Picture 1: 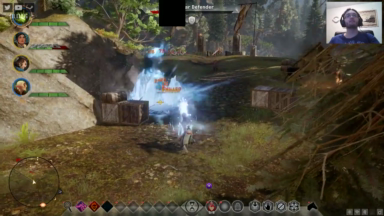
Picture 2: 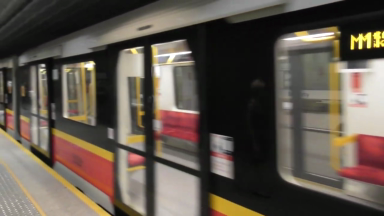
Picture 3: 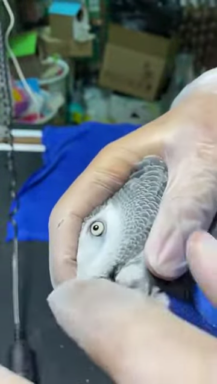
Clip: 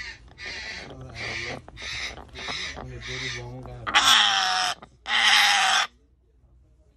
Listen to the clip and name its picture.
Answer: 3